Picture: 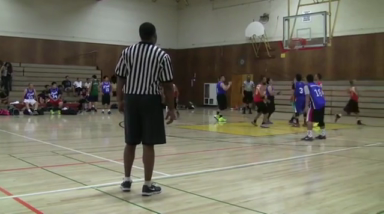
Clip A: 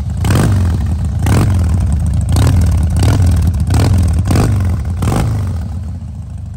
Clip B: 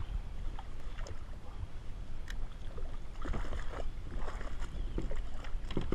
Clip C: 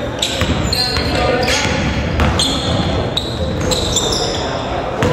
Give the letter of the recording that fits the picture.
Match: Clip C